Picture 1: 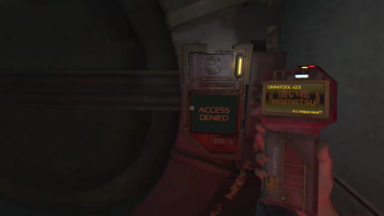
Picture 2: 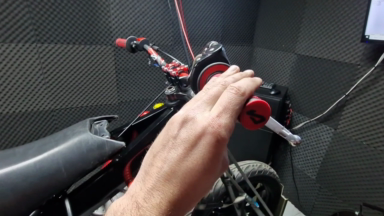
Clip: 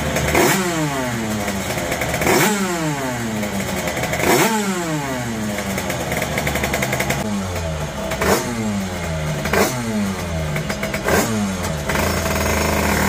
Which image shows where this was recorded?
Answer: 2